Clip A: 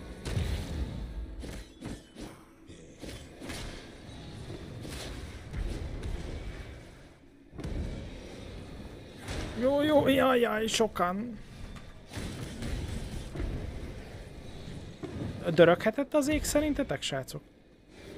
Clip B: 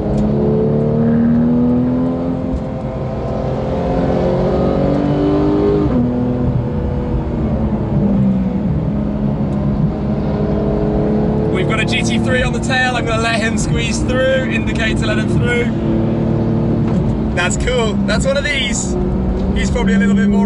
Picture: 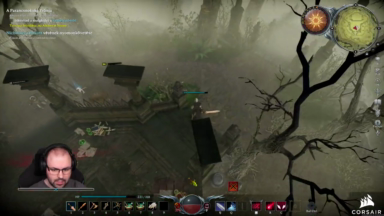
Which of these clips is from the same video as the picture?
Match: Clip A